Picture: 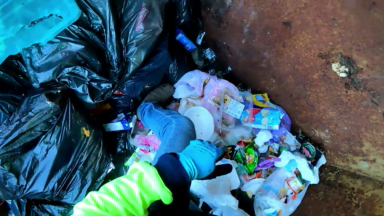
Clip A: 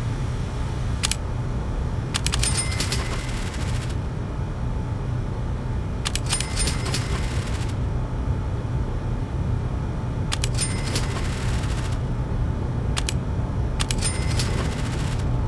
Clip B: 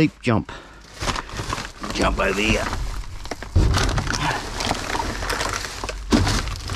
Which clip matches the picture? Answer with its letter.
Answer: B